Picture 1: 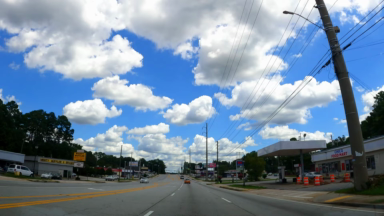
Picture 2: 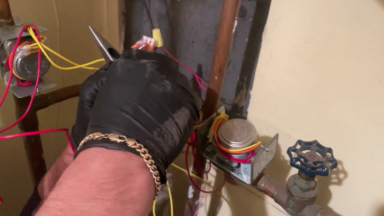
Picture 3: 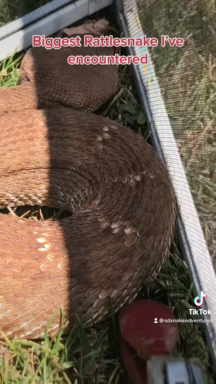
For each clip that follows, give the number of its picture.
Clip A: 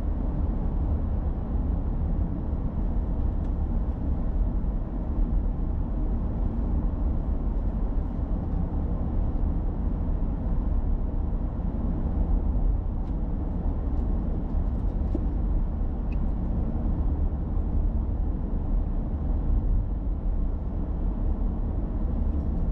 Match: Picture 1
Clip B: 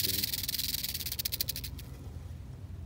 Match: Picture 3